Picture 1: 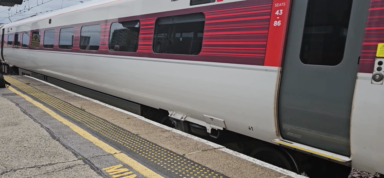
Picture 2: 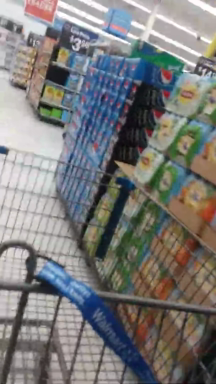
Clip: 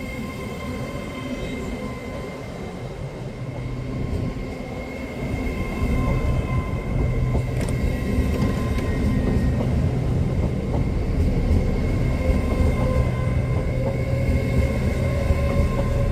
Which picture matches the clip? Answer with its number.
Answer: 1